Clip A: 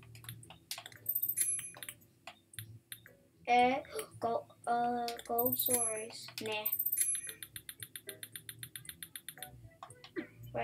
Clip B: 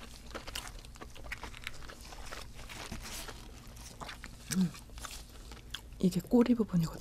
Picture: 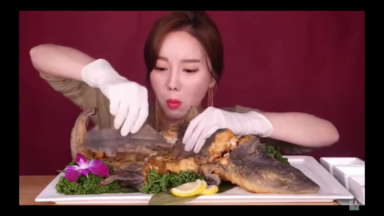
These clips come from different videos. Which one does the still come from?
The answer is B